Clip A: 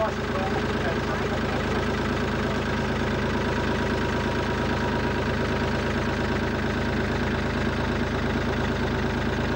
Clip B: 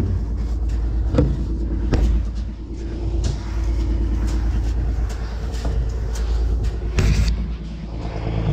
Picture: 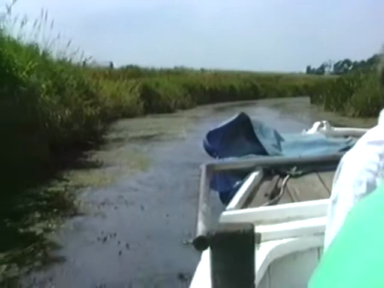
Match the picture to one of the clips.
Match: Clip A